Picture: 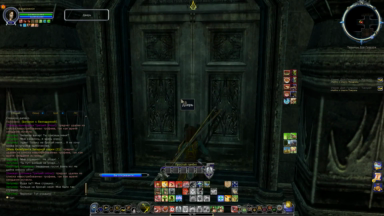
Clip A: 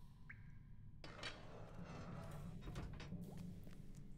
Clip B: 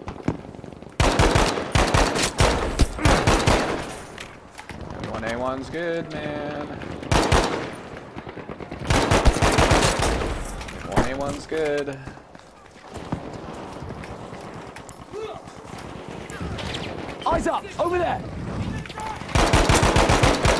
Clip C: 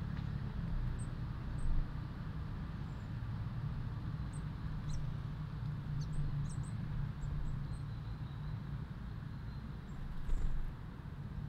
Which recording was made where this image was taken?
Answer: A